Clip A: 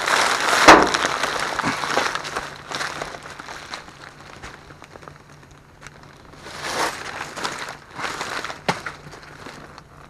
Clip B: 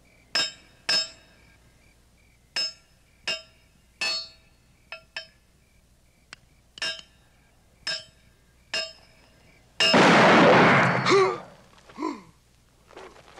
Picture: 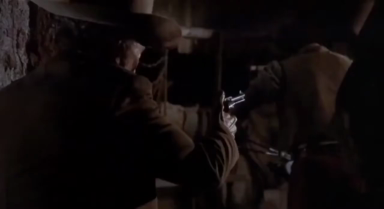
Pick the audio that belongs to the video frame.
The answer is B